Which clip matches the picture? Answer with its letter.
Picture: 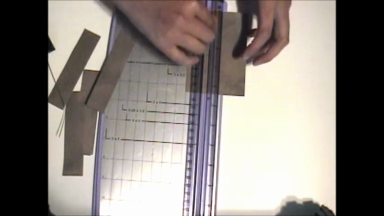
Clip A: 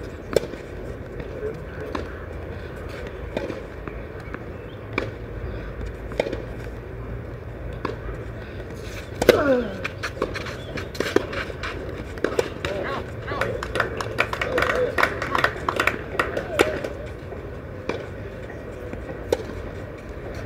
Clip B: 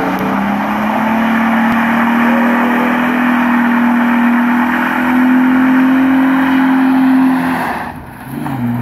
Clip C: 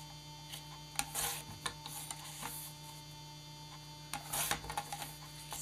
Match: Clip C